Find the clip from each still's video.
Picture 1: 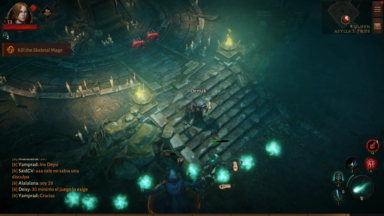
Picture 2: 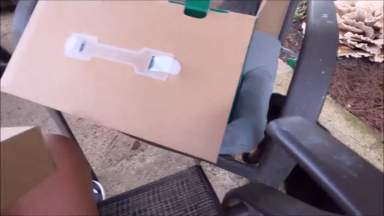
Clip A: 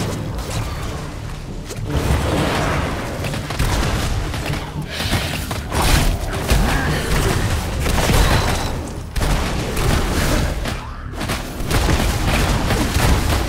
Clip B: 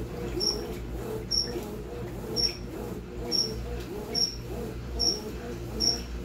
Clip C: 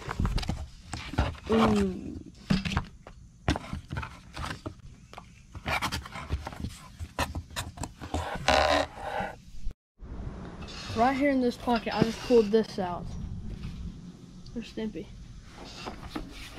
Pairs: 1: A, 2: C